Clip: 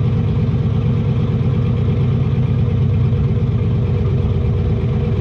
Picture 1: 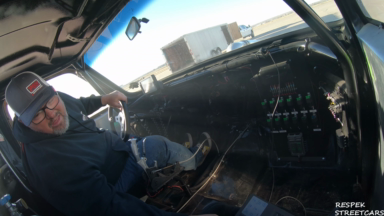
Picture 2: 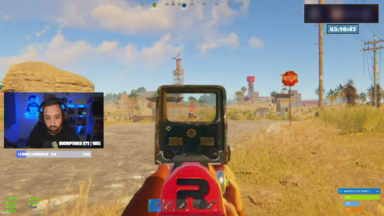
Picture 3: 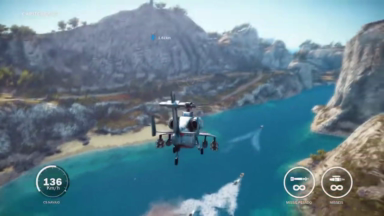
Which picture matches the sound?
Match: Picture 1